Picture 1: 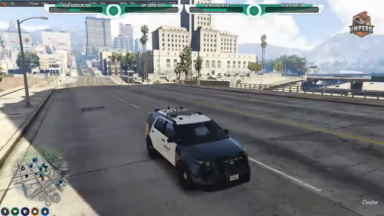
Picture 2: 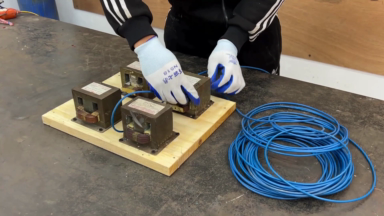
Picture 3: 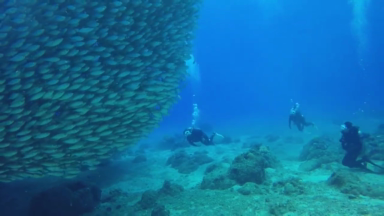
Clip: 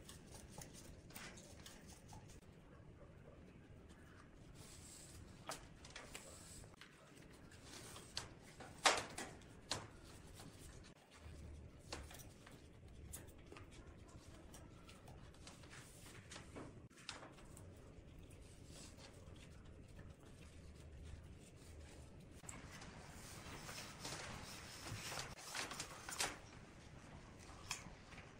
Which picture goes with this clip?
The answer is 2